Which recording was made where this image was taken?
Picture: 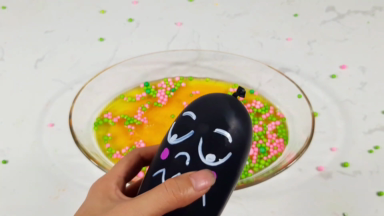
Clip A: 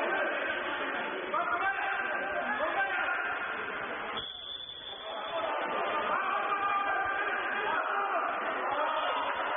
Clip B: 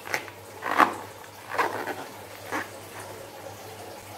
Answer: B